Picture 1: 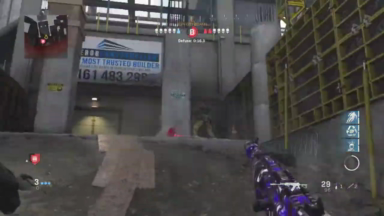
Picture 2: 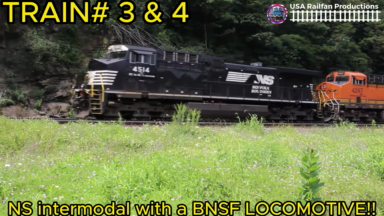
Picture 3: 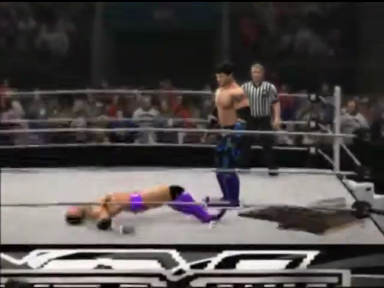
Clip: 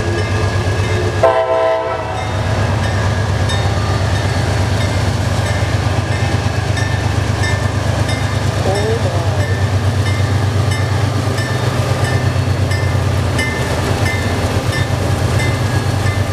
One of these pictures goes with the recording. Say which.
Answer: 2